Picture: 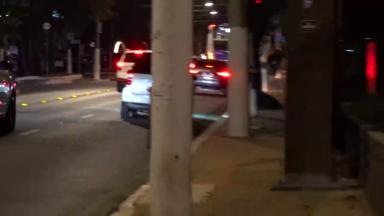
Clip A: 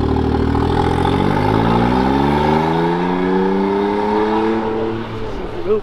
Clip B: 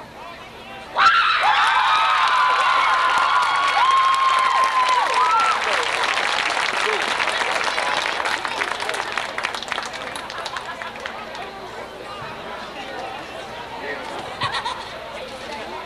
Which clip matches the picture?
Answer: A